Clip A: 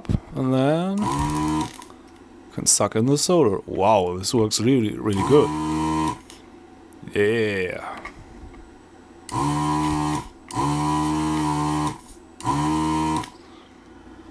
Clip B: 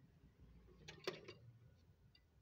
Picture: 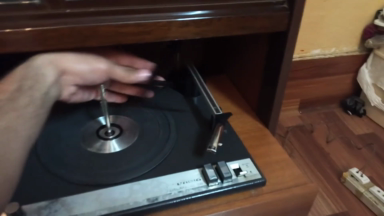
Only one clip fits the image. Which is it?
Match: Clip B